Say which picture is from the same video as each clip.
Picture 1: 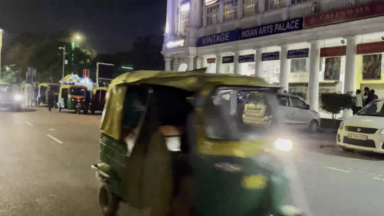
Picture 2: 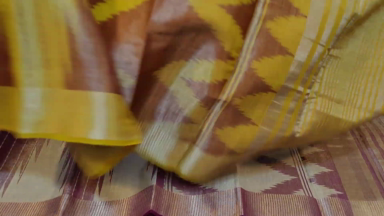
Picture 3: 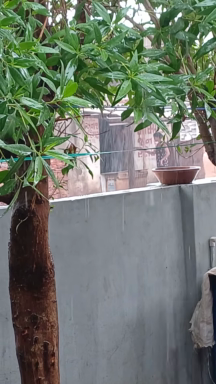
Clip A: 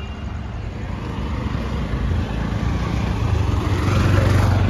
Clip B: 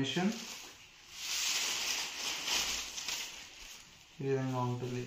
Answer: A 1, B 2